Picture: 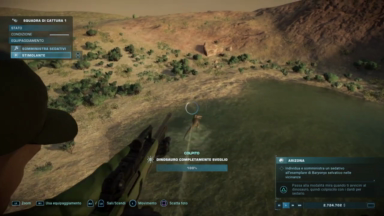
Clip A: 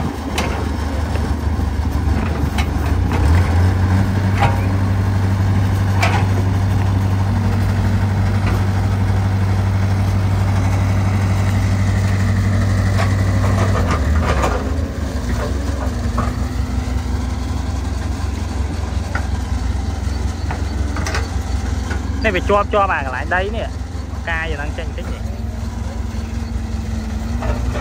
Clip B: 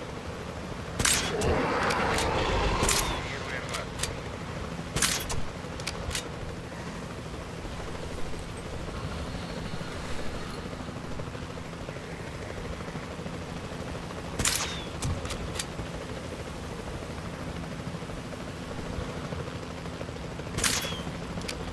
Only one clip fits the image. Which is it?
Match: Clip B